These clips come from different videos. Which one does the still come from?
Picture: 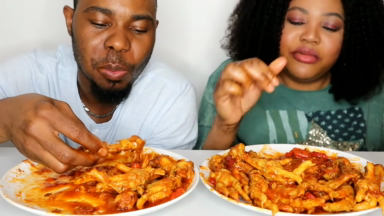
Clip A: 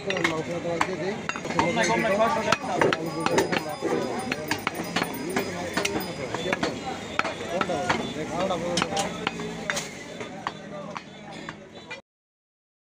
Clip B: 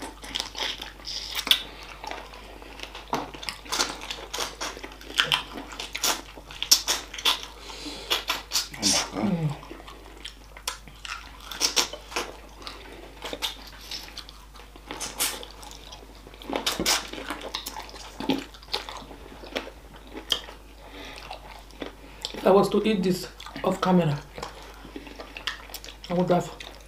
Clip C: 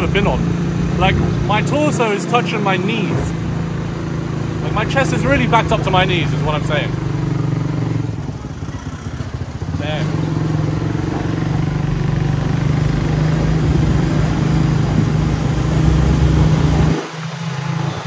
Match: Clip B